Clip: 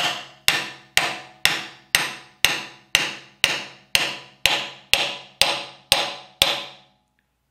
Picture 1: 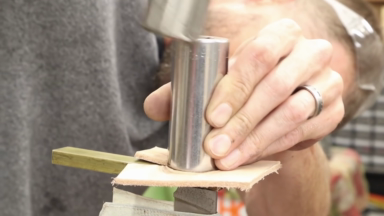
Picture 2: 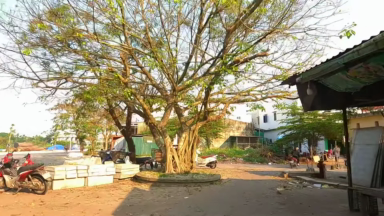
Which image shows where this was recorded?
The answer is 1